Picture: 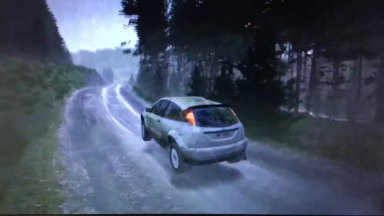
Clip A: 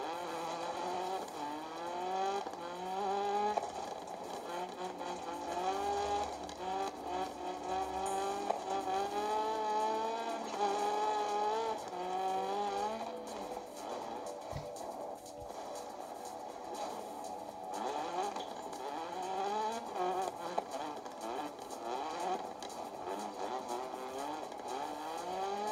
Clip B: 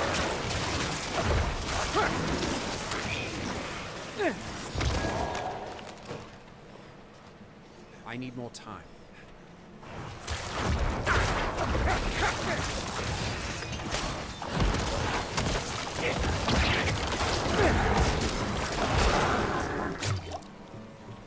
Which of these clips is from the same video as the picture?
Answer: A